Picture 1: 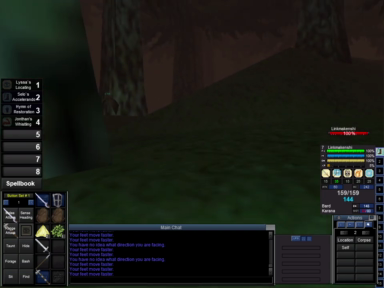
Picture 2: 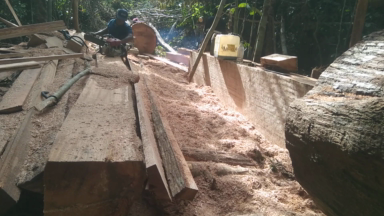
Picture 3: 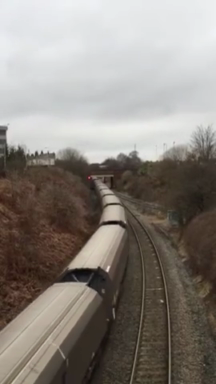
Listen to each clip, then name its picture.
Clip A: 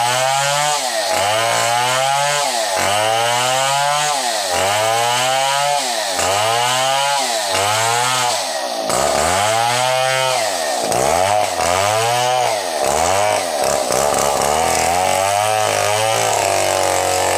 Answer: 2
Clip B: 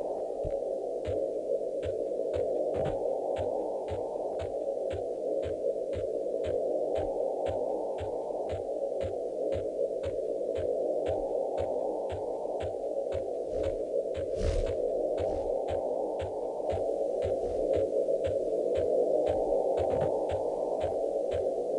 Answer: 1